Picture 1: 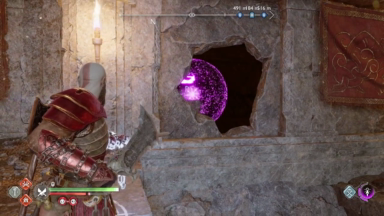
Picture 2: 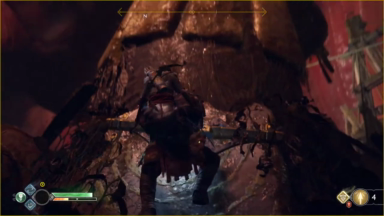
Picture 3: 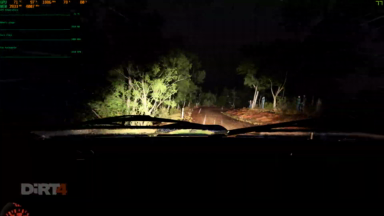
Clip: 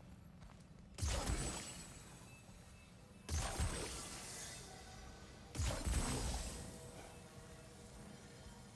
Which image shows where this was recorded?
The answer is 1